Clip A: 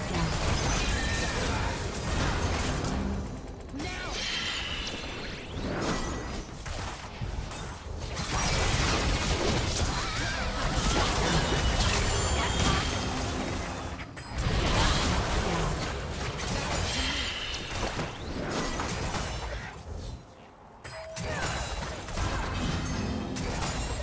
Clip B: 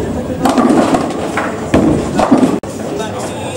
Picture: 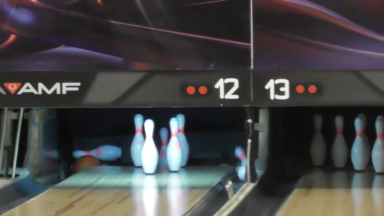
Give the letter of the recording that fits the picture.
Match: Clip B